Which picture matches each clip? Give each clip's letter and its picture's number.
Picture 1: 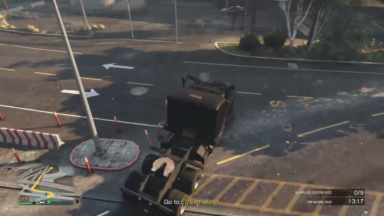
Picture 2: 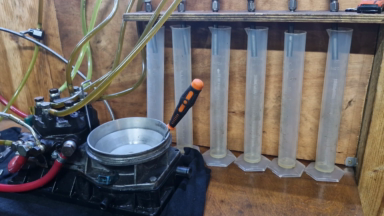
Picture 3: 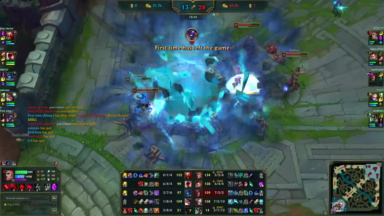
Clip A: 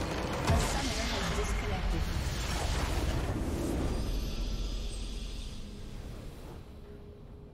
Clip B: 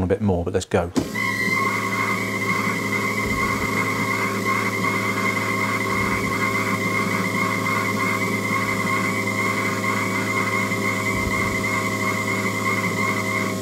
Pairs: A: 3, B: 2